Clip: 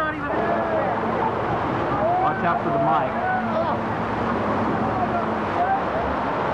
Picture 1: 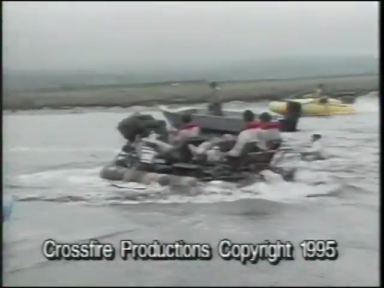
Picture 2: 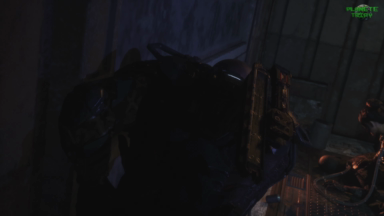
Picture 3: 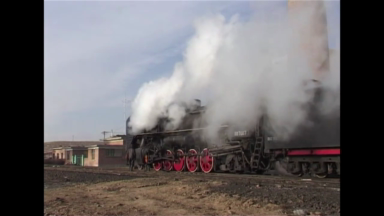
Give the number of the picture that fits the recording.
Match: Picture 1